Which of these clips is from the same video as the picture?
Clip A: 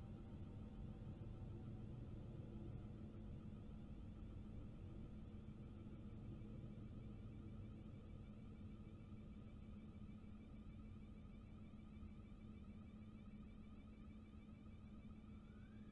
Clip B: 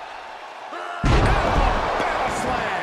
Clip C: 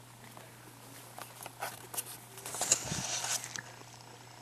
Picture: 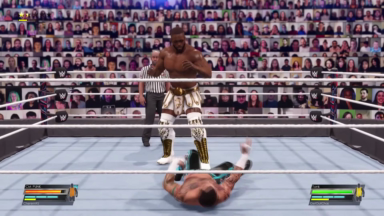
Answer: B